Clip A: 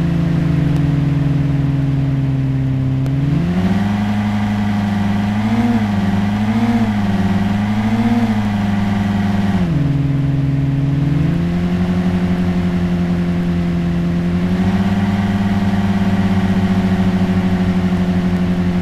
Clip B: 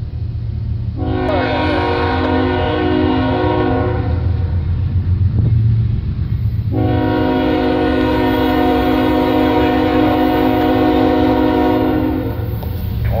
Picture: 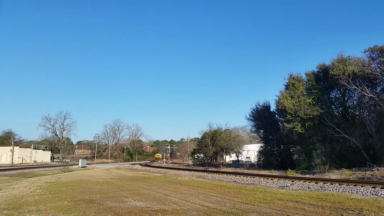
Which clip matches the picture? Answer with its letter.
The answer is B